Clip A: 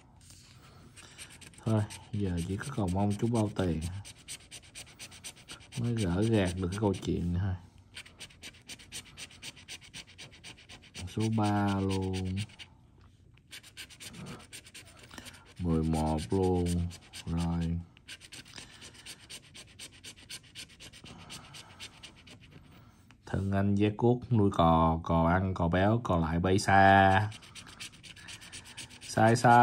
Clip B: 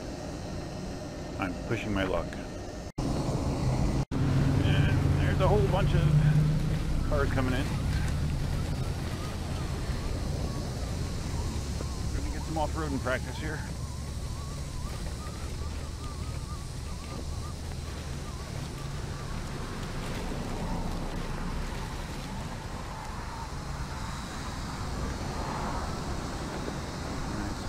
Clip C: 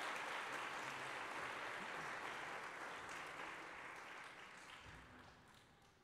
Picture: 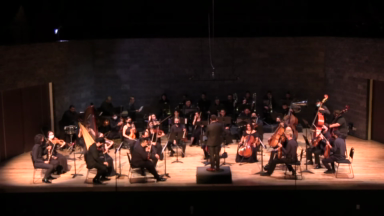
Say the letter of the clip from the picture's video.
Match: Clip C